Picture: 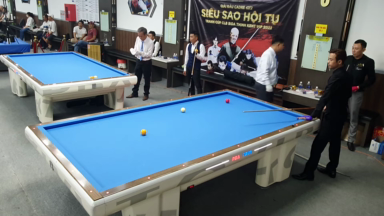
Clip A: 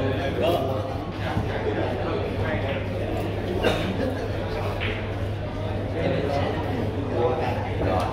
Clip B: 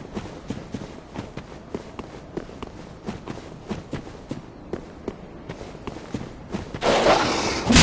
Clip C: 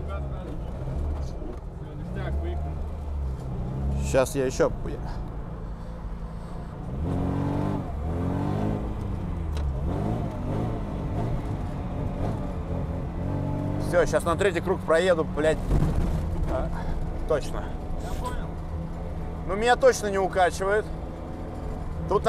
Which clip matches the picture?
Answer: A